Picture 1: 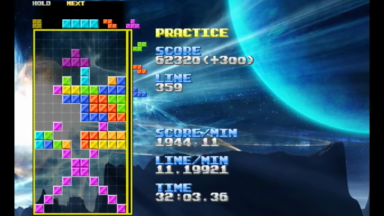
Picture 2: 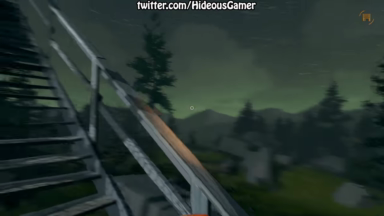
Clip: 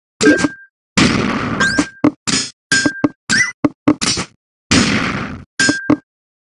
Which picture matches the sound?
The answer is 1